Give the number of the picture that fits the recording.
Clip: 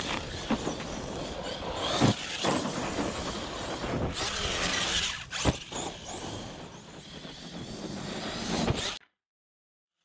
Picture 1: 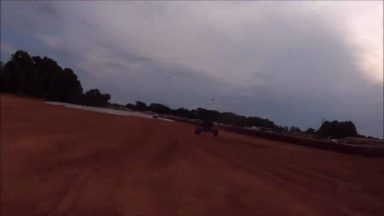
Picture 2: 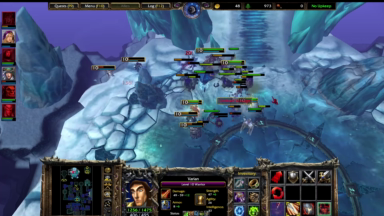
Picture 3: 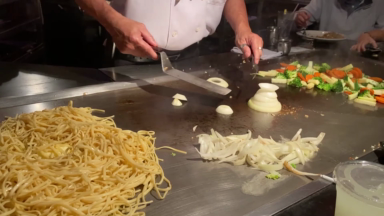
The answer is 1